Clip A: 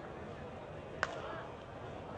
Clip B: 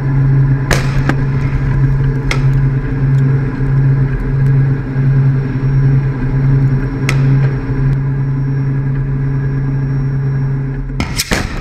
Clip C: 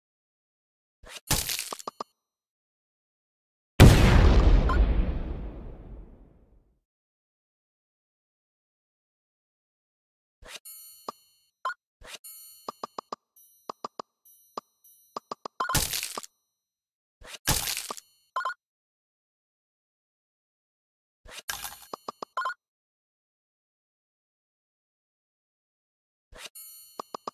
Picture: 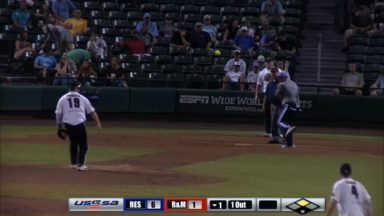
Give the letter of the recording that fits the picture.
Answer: A